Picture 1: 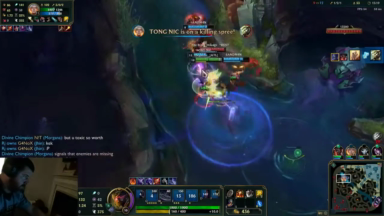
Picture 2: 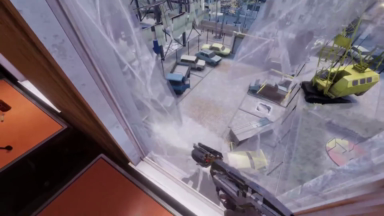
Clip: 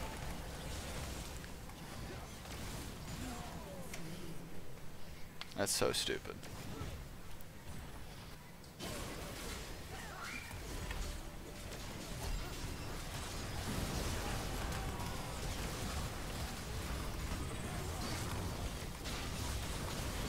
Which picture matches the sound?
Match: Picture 1